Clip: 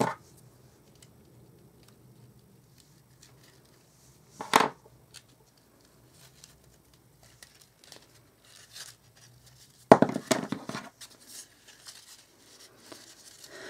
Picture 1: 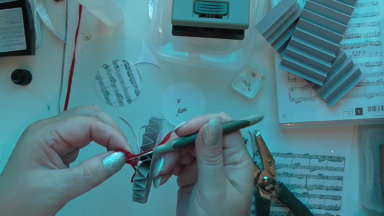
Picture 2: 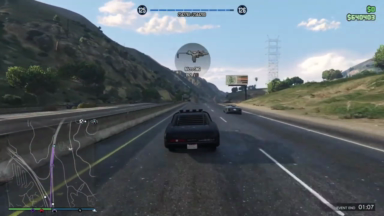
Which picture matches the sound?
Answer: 1